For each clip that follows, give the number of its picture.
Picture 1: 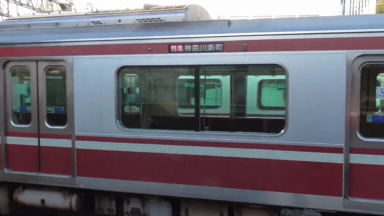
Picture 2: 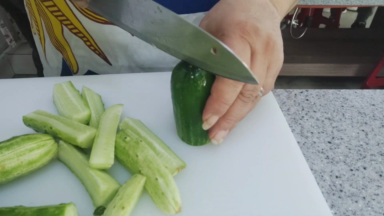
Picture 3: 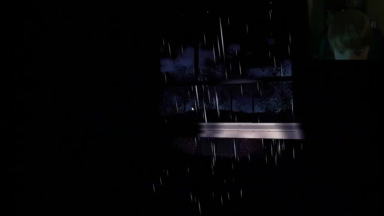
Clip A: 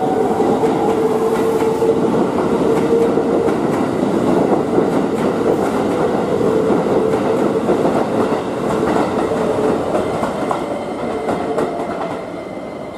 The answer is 1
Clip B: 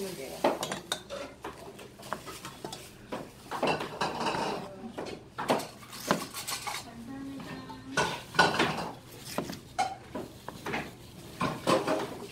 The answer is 2